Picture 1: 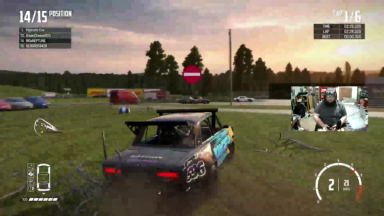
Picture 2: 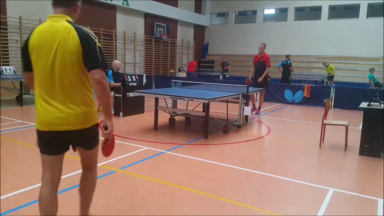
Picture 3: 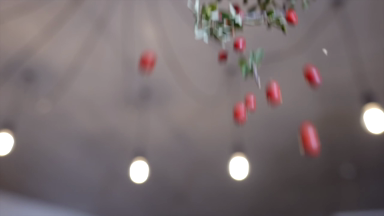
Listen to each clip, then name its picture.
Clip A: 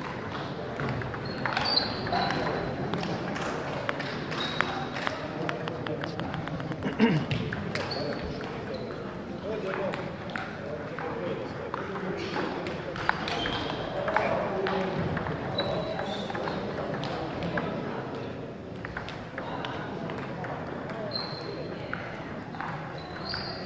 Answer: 2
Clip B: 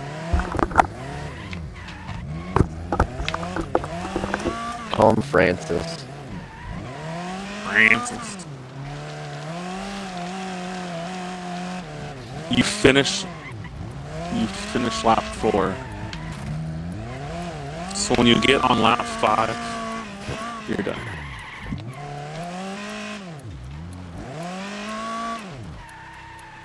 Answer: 1